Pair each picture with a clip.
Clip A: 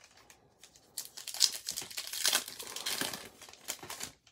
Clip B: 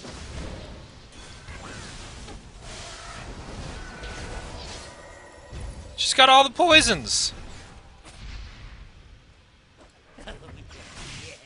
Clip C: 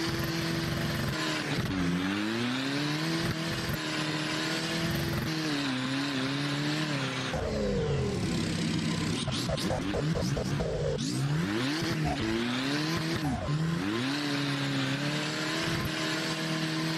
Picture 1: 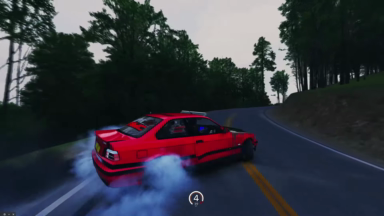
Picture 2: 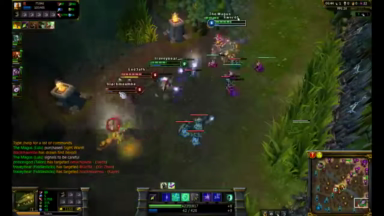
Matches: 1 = C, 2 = B